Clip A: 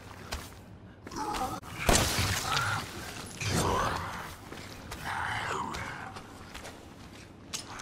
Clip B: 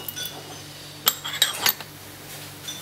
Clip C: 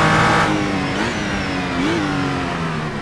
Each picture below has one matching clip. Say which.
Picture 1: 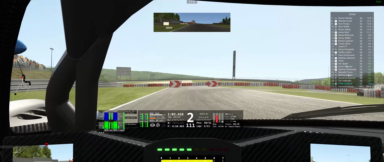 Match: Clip C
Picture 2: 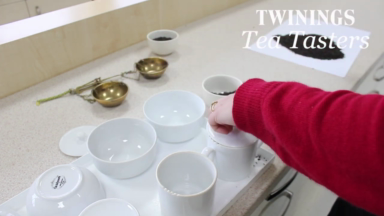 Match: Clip B